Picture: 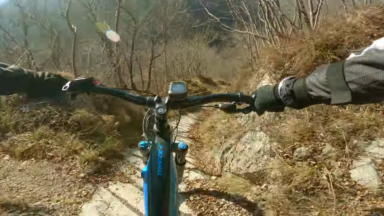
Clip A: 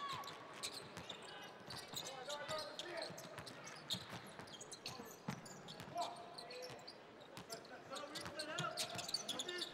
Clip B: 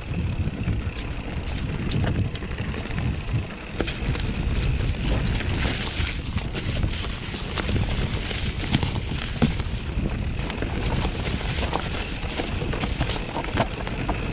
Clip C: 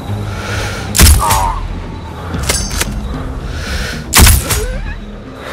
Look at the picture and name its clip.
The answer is B